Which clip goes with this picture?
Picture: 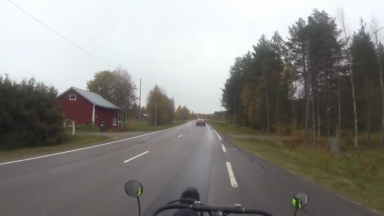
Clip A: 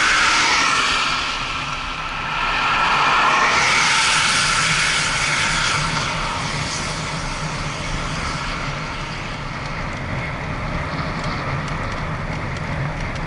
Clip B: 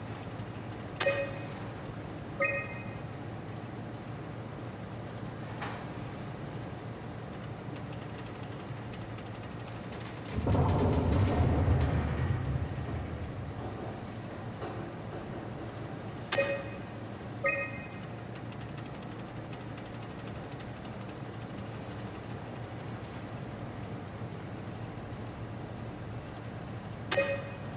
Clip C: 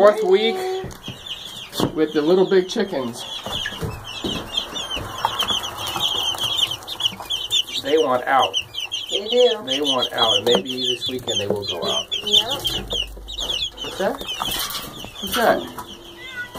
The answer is A